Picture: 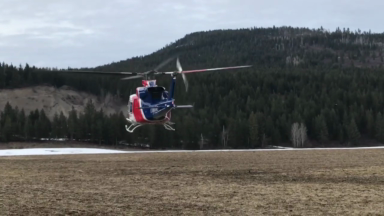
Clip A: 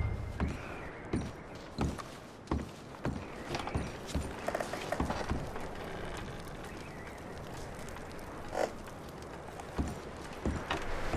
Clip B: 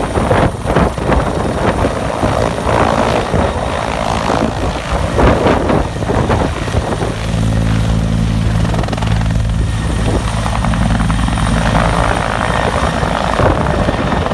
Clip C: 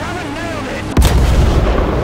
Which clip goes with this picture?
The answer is B